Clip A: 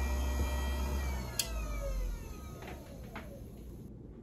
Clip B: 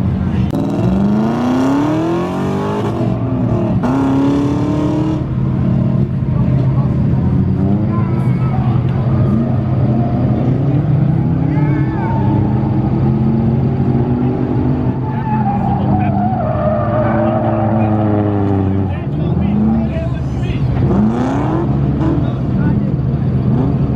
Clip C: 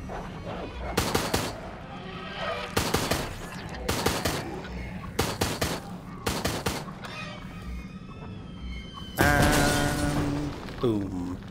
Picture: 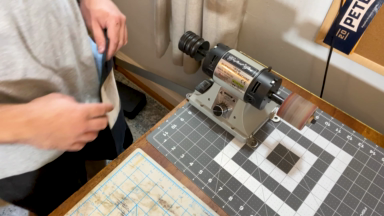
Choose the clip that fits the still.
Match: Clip A